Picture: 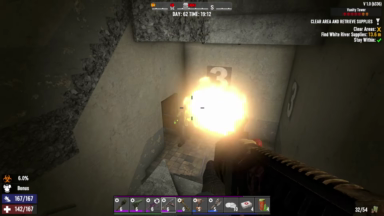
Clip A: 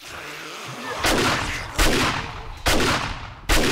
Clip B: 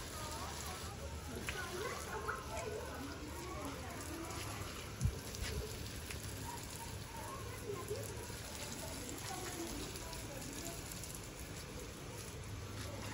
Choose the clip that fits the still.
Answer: A